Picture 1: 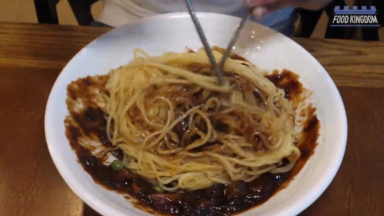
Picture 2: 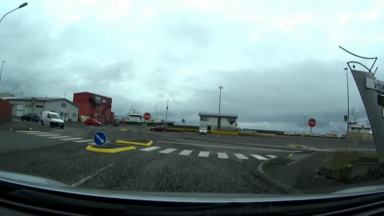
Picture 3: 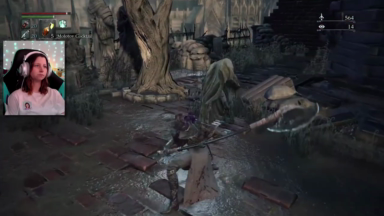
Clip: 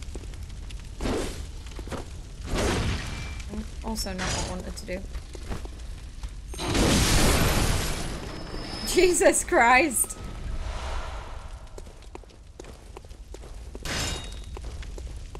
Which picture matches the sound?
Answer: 3